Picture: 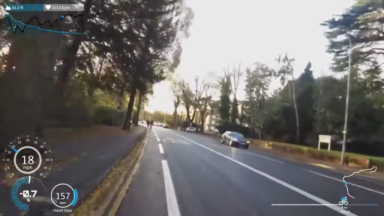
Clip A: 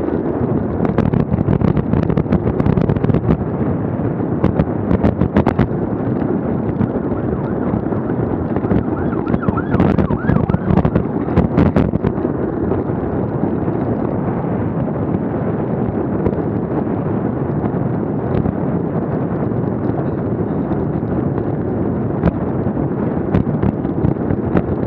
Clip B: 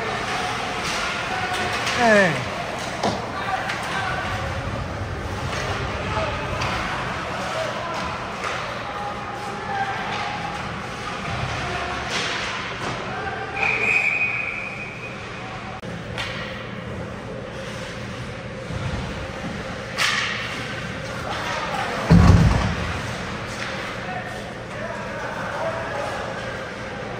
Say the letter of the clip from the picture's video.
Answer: A